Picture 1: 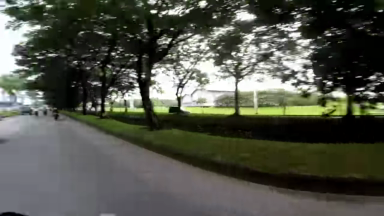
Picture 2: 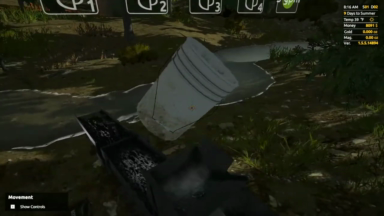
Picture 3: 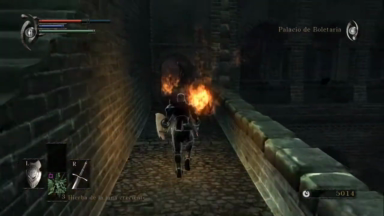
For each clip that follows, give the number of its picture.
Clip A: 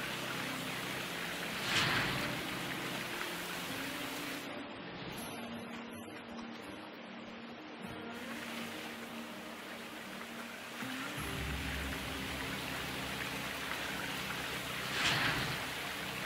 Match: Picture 2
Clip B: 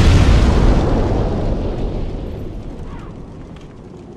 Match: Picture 3